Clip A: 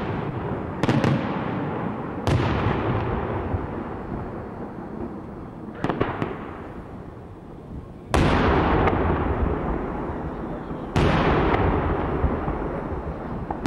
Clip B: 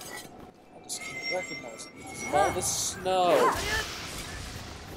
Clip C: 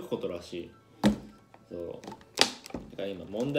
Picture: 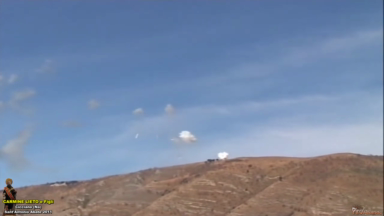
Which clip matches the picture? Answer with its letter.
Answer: A